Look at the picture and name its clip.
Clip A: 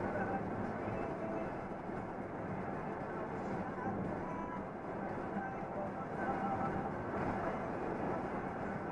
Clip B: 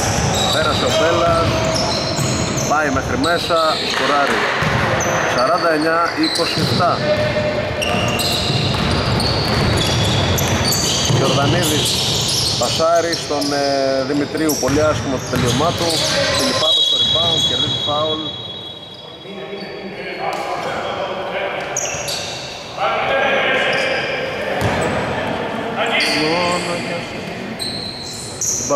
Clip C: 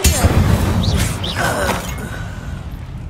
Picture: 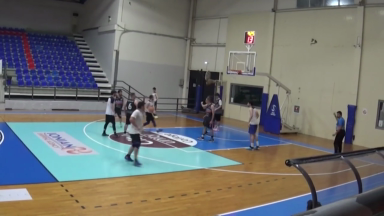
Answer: B